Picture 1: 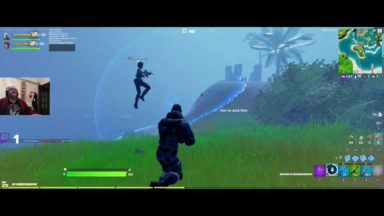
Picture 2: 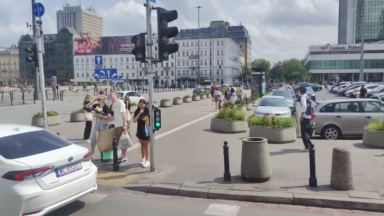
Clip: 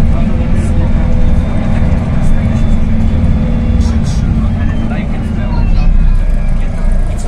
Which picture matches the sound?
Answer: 2